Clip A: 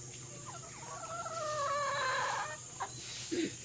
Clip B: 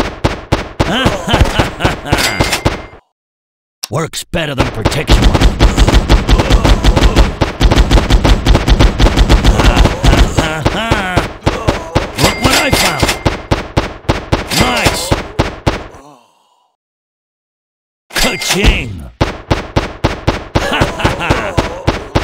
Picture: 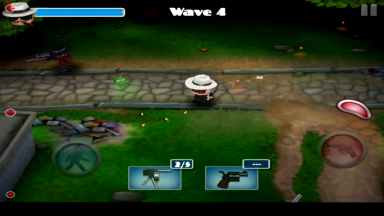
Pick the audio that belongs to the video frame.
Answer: B